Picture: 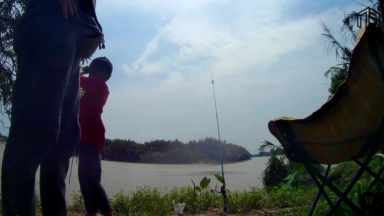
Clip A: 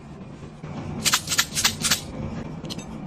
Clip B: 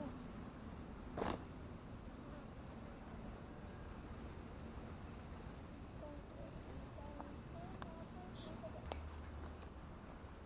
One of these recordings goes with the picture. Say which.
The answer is B